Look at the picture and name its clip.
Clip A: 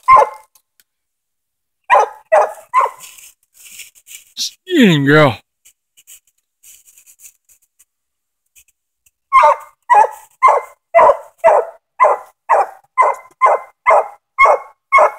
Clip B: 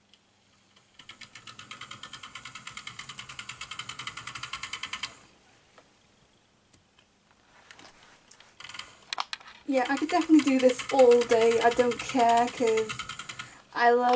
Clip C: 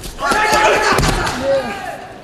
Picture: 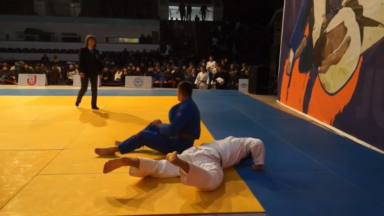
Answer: C